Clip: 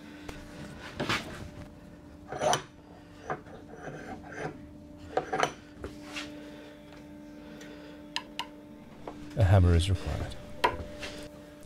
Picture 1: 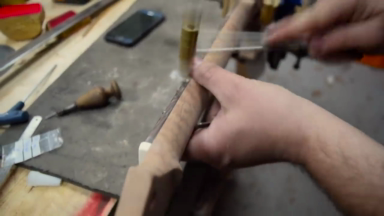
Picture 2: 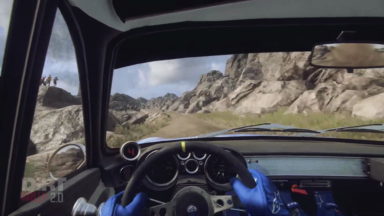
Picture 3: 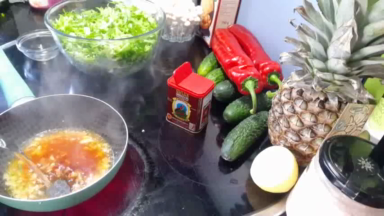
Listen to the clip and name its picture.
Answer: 1